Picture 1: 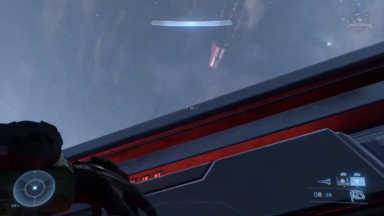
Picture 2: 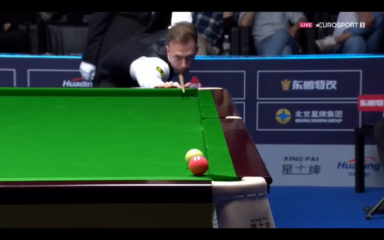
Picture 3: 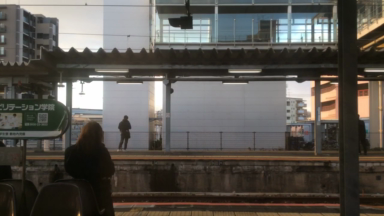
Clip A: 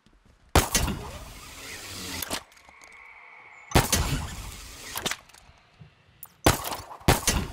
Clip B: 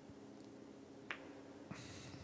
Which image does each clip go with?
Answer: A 1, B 2